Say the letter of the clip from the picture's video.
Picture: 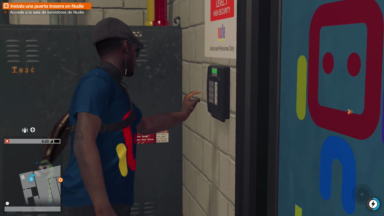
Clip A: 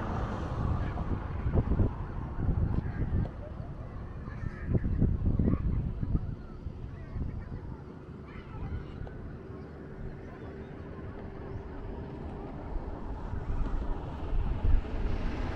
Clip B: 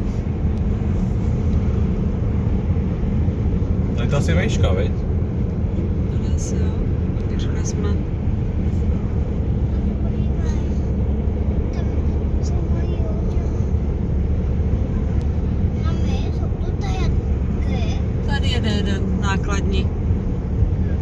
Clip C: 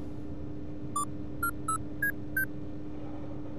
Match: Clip C